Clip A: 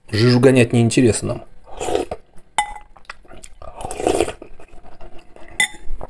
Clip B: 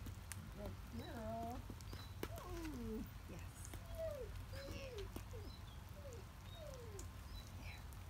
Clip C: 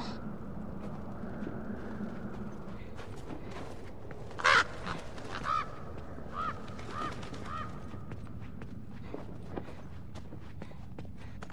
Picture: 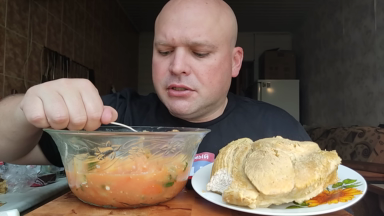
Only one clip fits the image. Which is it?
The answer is A